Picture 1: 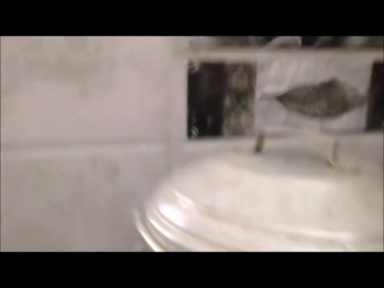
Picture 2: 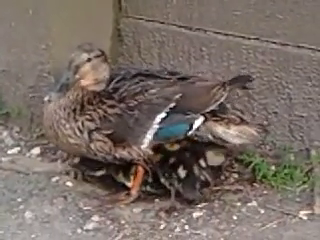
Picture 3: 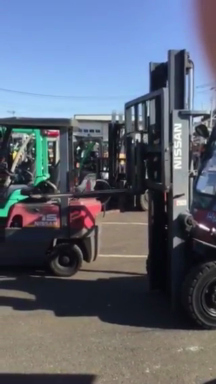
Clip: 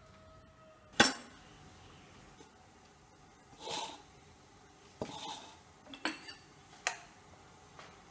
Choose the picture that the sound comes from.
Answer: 1